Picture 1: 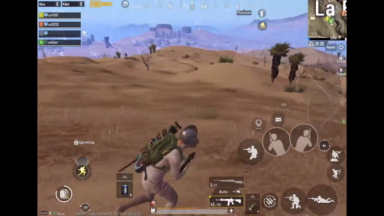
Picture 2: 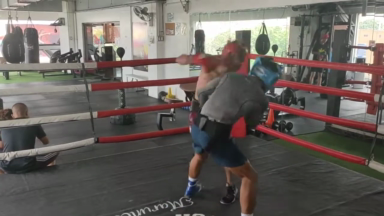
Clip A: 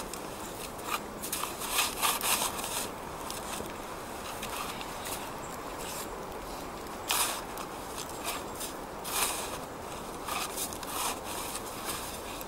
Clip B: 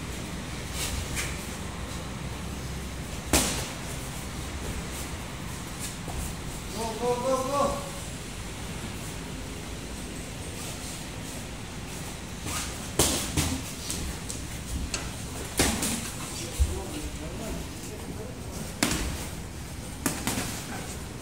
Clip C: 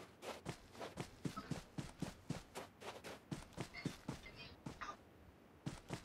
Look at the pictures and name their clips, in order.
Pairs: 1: C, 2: B